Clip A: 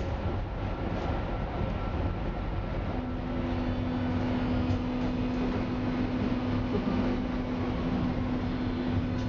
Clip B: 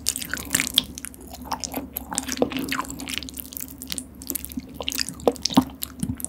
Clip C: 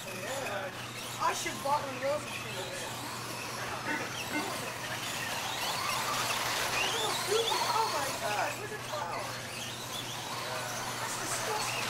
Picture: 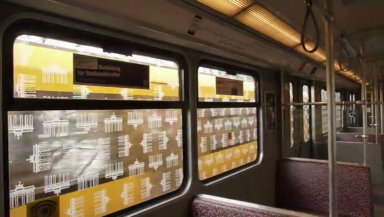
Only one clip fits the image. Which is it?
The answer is A